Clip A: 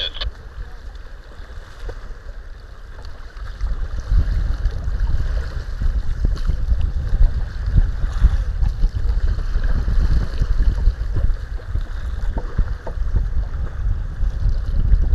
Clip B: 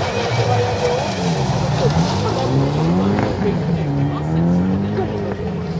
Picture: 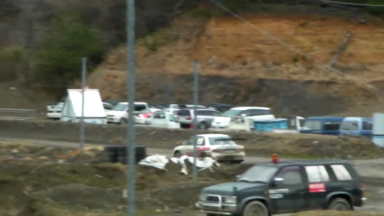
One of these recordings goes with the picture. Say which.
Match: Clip B